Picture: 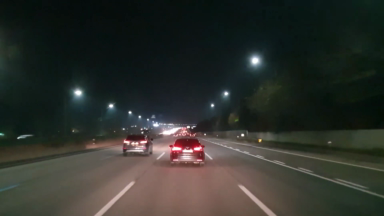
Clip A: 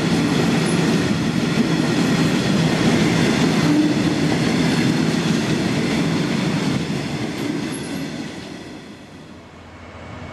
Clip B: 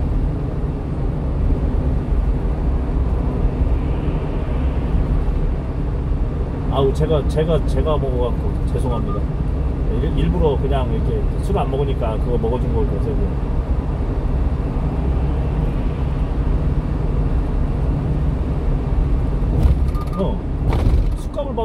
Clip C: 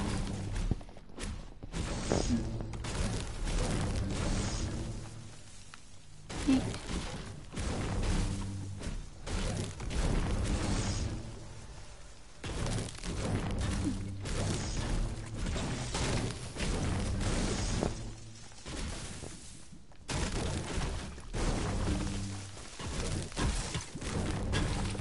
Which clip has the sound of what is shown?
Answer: B